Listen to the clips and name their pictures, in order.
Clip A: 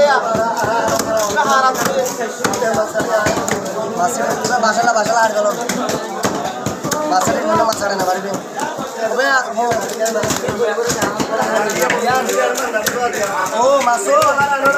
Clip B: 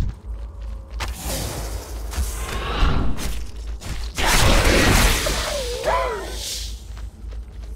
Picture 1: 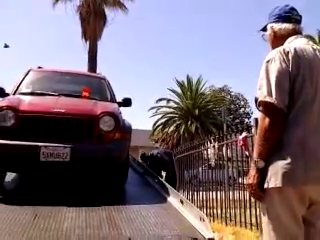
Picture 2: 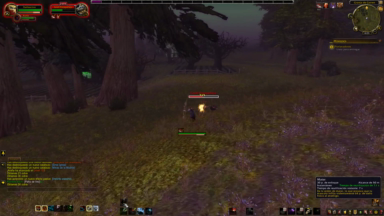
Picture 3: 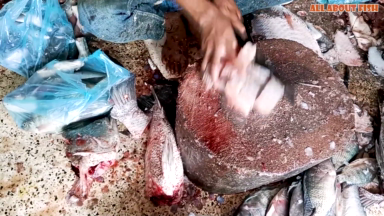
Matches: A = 3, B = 2